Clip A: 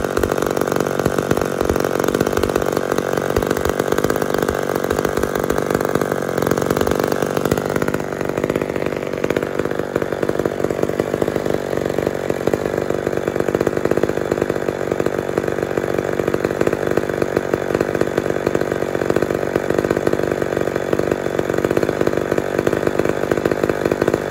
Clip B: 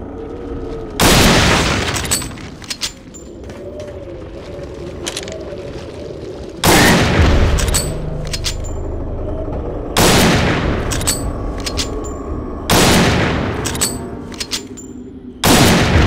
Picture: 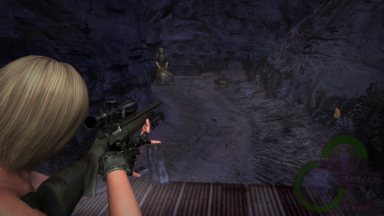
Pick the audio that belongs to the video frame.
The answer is B